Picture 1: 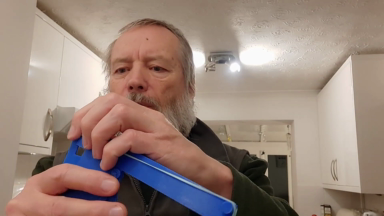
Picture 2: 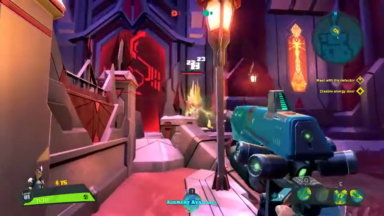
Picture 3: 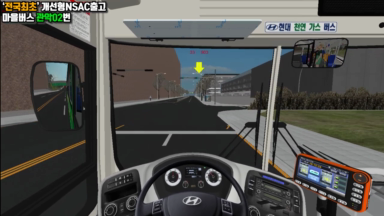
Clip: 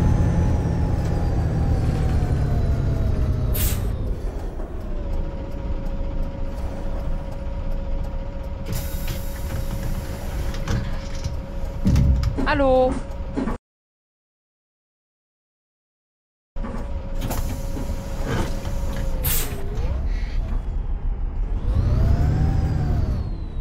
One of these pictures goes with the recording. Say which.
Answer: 3